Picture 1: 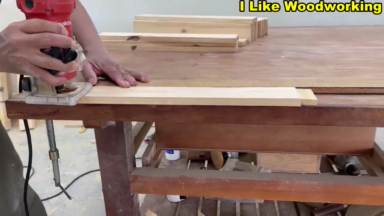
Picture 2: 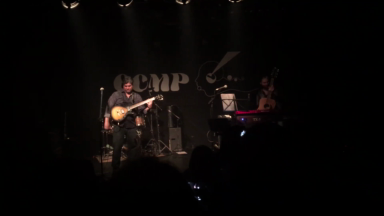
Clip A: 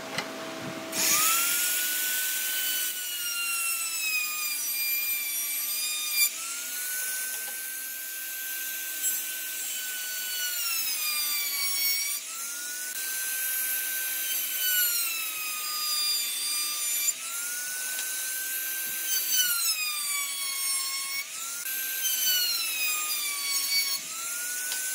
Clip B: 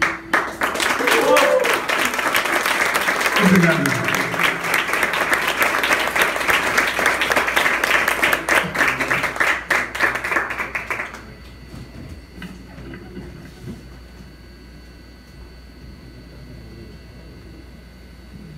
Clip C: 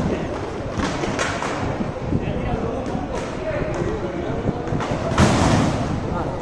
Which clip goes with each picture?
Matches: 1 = A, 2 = B